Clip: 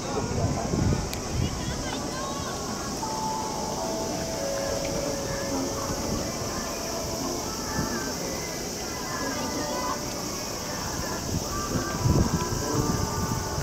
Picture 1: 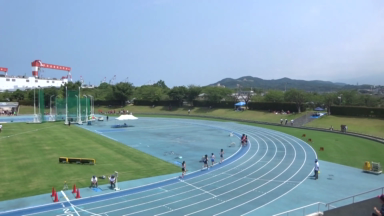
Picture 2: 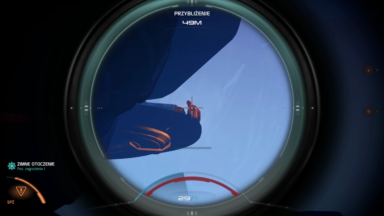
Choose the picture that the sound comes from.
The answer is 1